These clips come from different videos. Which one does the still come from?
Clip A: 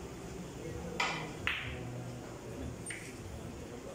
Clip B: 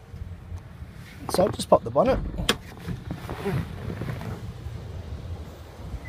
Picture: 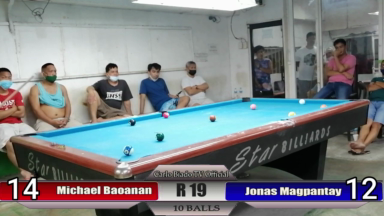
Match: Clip A